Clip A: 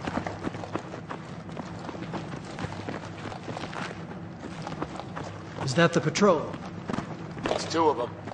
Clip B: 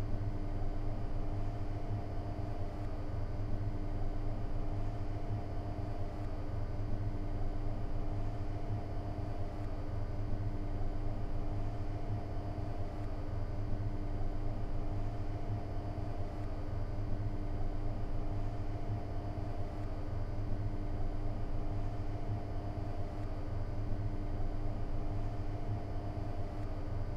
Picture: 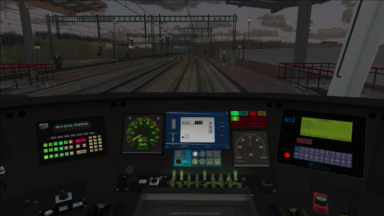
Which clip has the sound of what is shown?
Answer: B